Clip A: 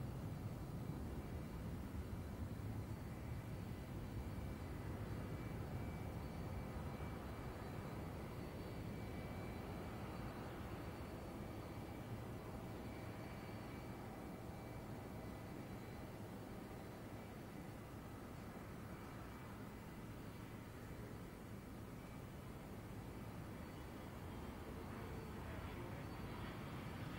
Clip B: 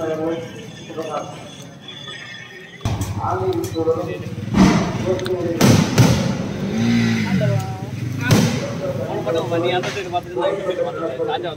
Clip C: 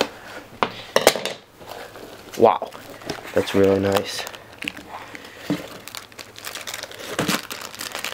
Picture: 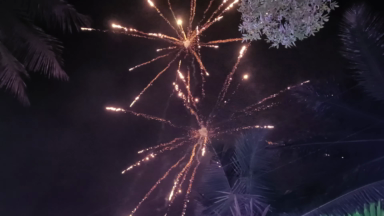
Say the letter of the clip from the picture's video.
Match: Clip B